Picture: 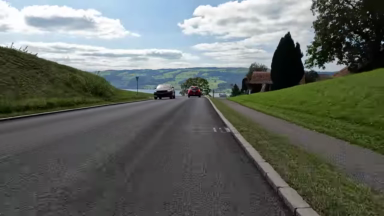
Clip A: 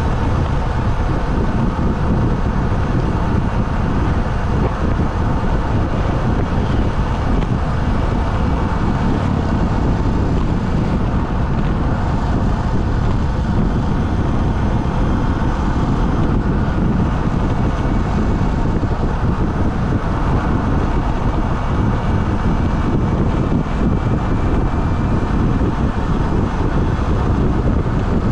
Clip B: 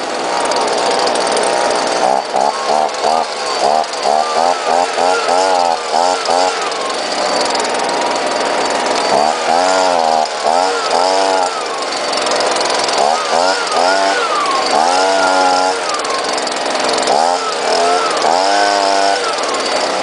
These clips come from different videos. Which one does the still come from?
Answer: A